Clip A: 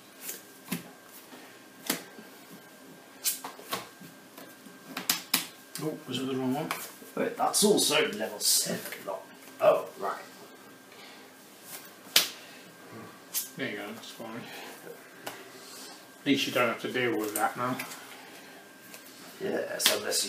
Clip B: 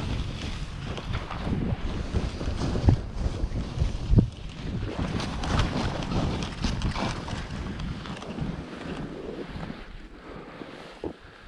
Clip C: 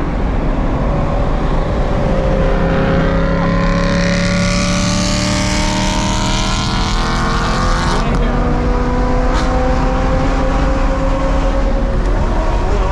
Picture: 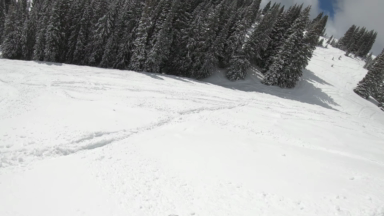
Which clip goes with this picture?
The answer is B